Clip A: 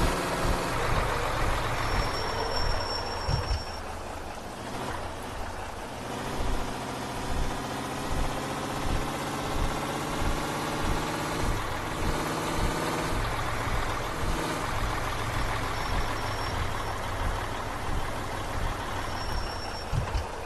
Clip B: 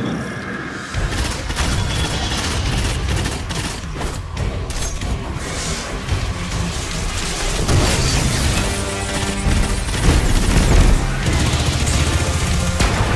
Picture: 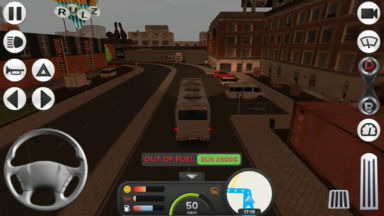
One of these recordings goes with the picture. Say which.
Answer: A